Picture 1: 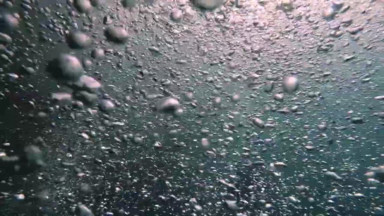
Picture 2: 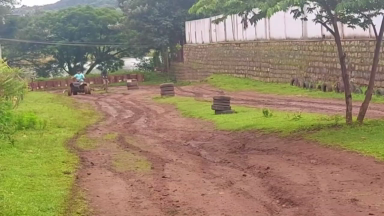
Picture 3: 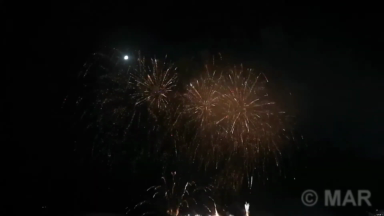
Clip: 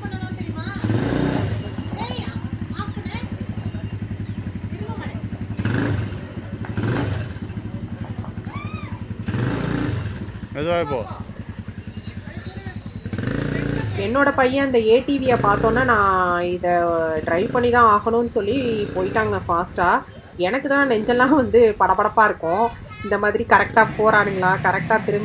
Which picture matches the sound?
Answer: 2